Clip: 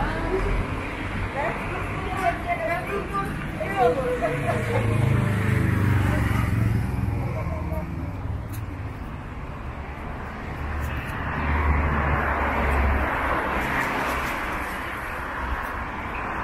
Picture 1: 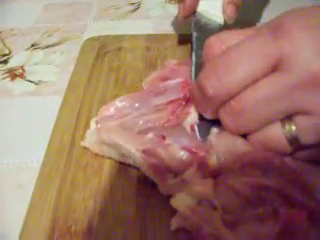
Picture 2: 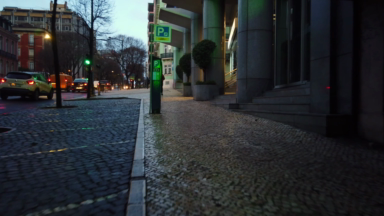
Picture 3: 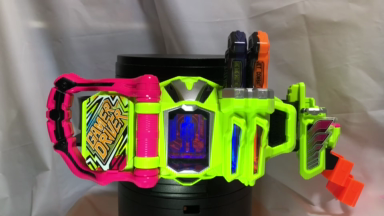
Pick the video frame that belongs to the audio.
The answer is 2